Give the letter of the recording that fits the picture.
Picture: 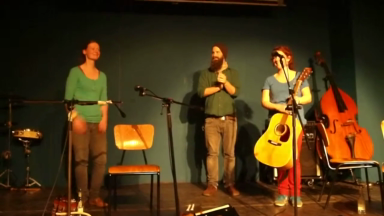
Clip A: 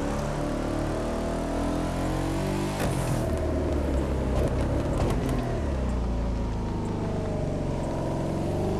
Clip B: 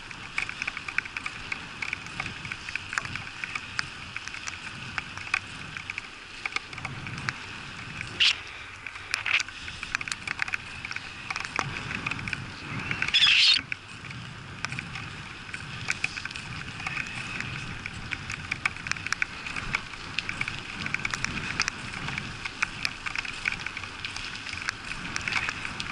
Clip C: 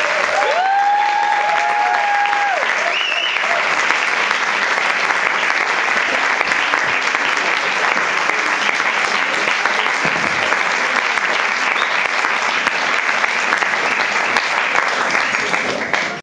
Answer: C